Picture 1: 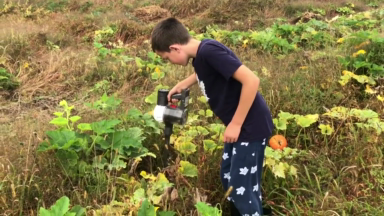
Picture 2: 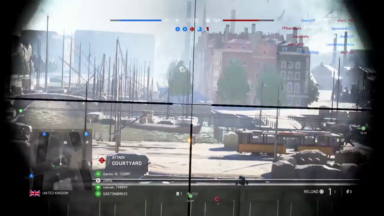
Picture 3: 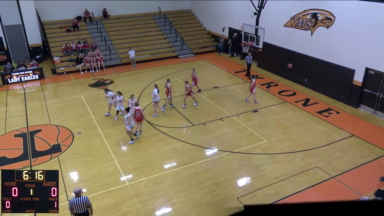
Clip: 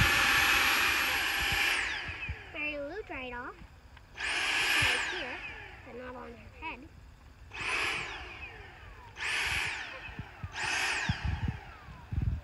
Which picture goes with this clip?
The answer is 1